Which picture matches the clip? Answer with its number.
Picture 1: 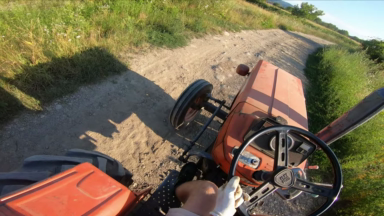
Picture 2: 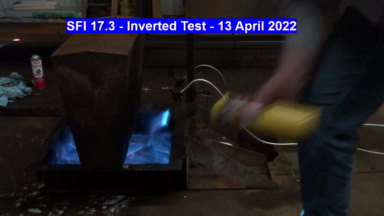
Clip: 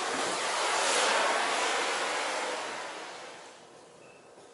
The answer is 2